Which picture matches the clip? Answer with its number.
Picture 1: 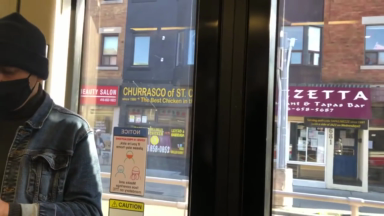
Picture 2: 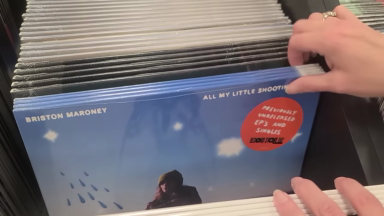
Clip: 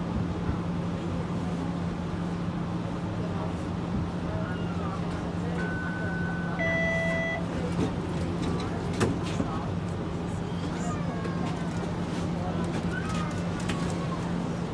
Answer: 1